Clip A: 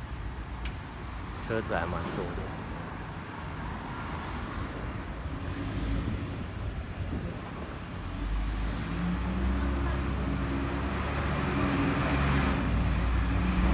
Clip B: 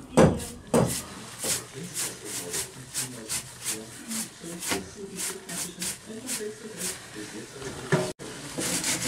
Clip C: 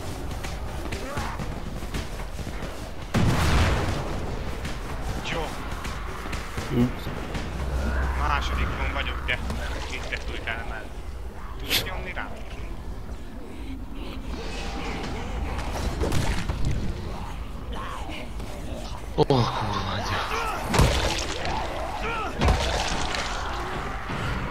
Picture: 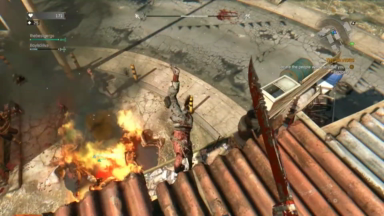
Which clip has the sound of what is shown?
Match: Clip C